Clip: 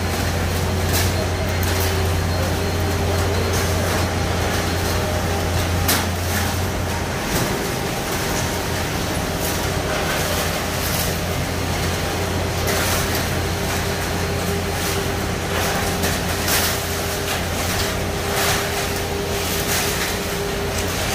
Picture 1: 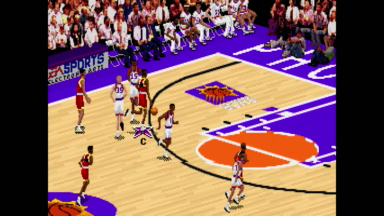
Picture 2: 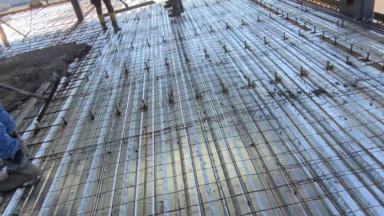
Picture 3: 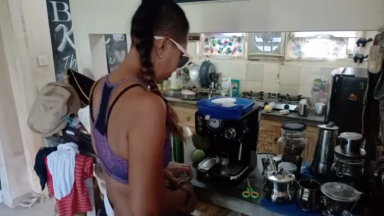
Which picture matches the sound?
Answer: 2